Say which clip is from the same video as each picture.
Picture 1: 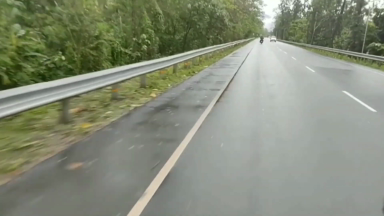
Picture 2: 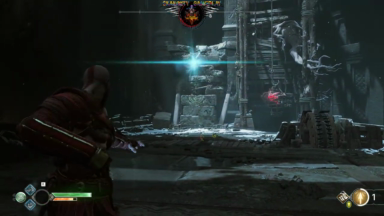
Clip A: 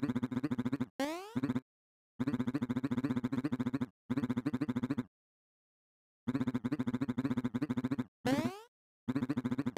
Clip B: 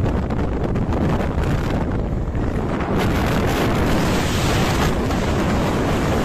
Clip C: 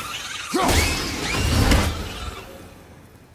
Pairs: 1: B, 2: C